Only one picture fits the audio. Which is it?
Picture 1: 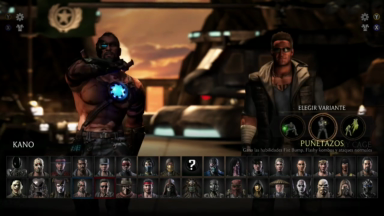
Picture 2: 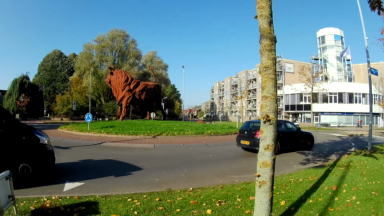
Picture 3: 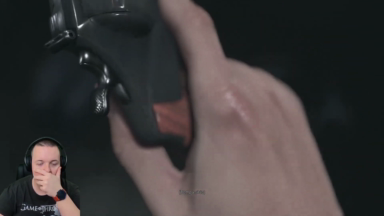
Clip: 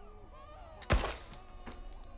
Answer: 3